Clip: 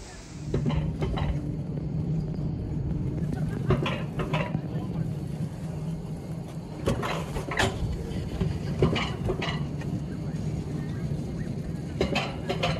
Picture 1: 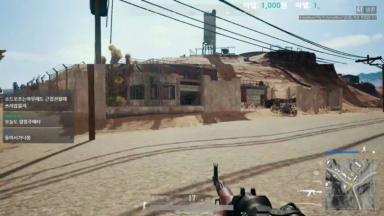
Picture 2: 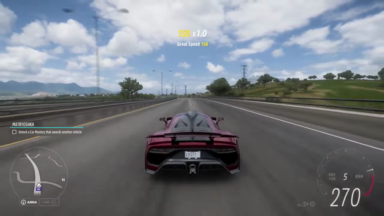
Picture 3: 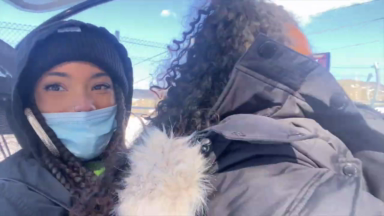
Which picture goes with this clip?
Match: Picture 3